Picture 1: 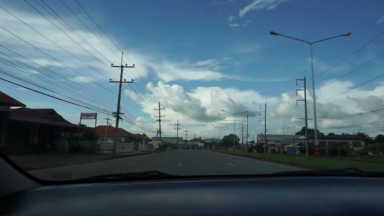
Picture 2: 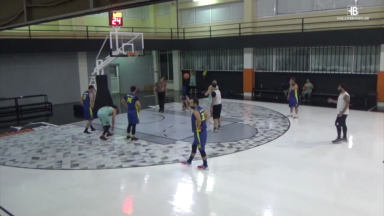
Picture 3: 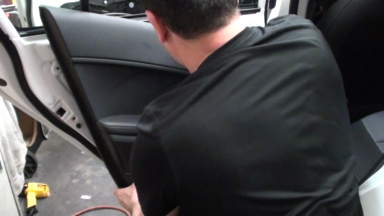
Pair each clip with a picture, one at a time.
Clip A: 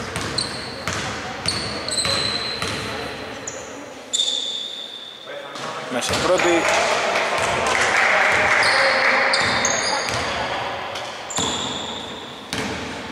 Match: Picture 2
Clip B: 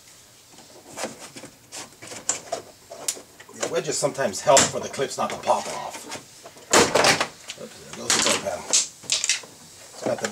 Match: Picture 3